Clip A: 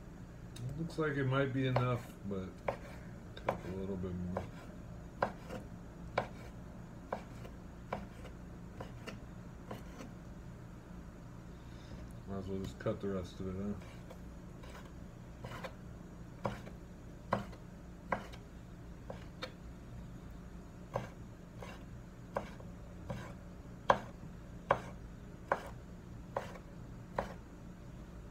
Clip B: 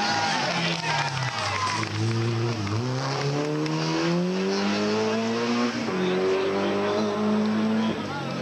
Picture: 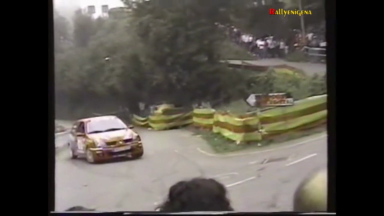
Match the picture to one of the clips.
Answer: B